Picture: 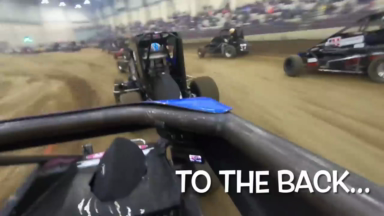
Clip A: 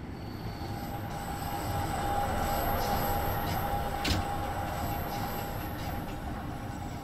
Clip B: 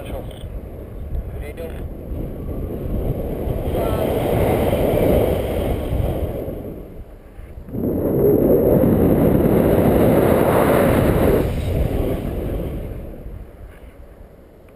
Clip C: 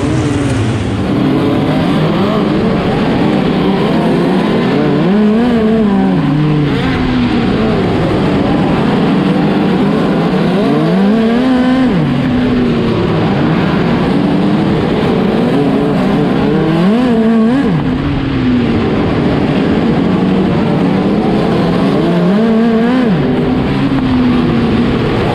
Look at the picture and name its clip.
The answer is C